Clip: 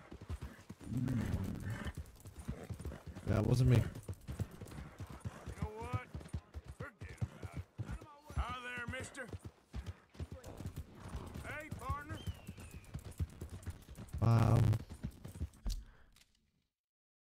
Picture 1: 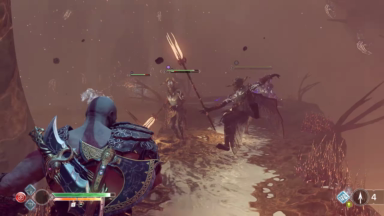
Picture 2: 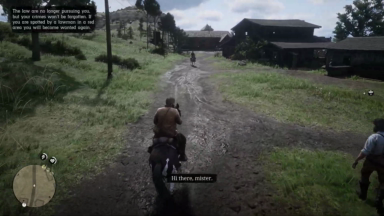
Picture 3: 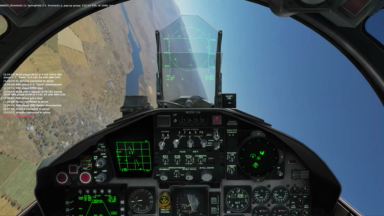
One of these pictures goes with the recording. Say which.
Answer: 2